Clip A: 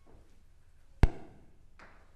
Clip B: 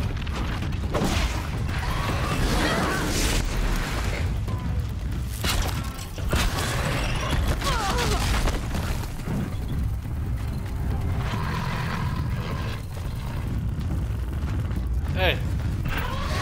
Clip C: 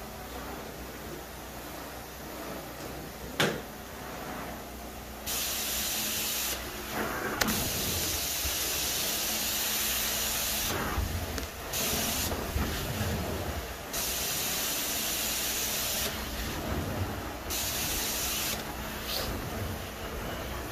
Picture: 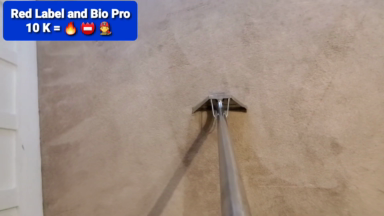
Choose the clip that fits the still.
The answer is C